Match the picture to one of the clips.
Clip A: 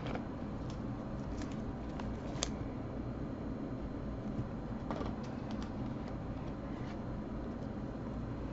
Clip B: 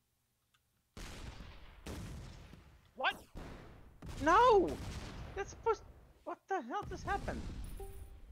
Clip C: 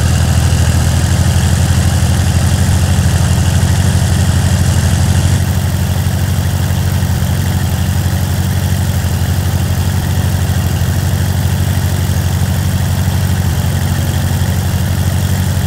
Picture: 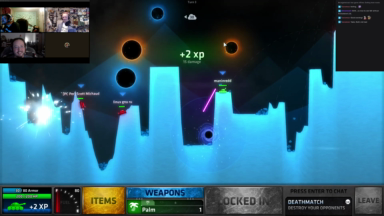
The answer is B